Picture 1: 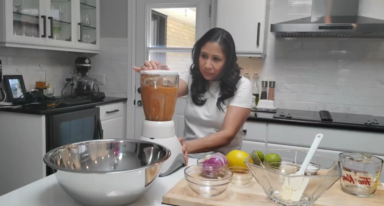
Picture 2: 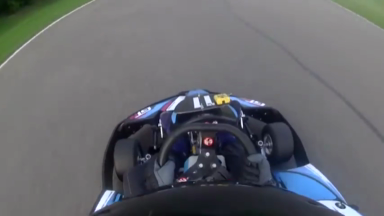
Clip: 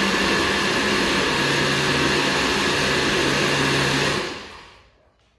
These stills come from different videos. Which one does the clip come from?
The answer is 1